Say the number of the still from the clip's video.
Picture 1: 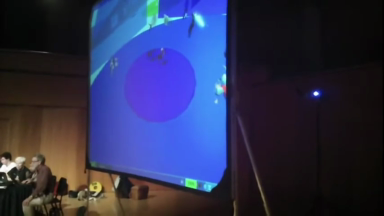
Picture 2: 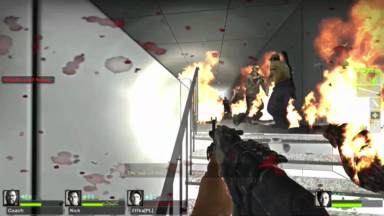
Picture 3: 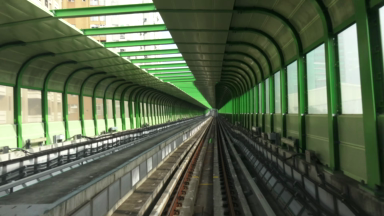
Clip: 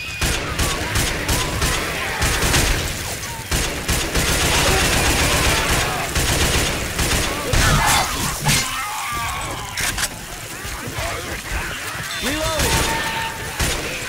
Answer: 2